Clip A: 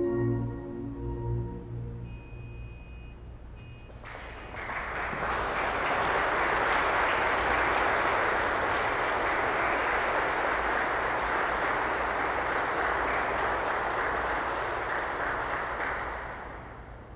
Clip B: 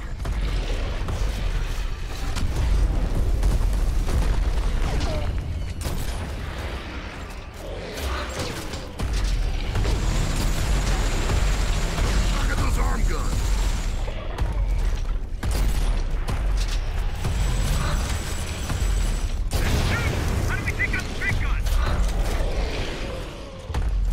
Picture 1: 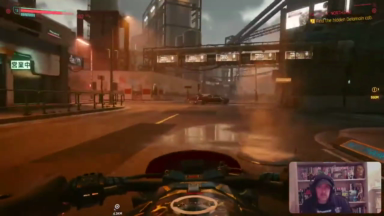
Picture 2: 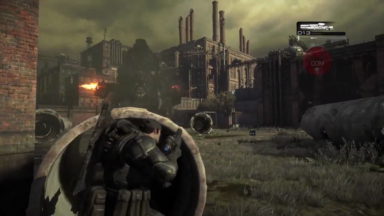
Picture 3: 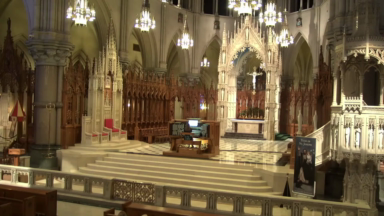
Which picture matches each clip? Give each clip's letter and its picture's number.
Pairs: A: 3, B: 2